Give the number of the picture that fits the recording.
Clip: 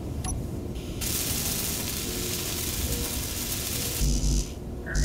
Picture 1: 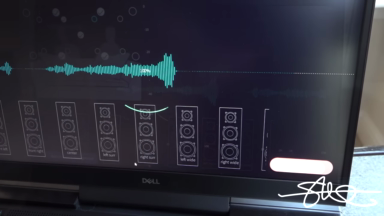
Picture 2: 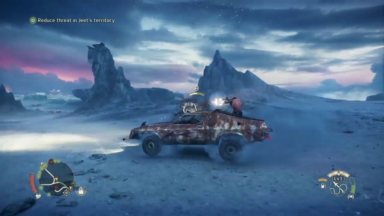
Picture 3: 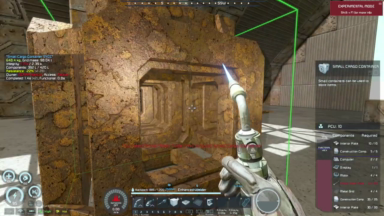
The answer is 3